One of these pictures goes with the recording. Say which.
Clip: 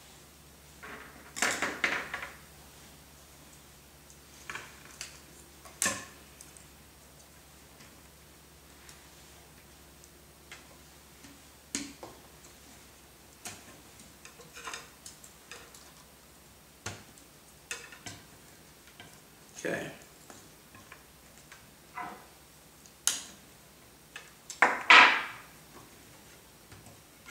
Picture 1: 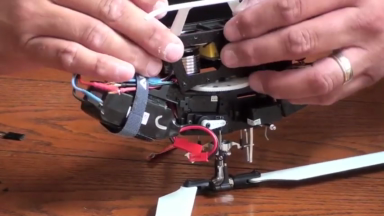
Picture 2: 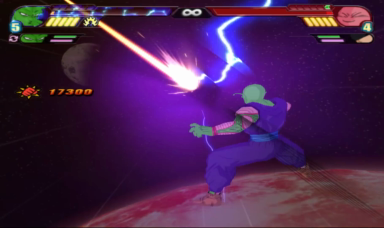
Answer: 1